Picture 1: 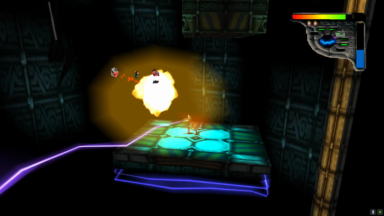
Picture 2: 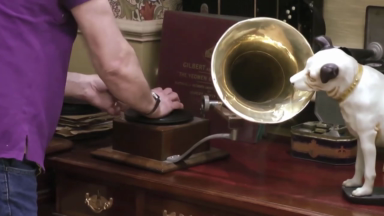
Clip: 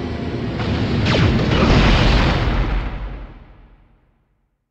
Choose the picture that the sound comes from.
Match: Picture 1